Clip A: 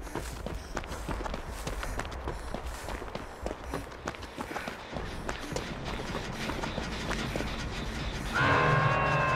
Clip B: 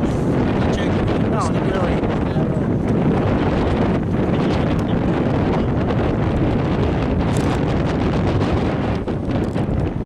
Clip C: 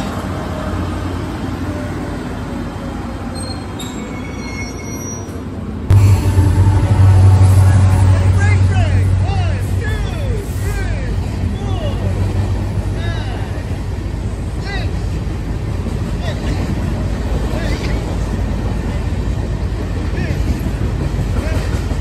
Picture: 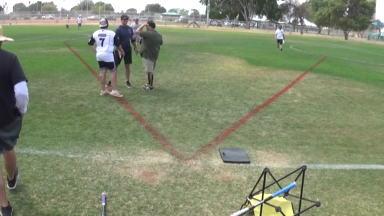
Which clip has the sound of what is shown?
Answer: B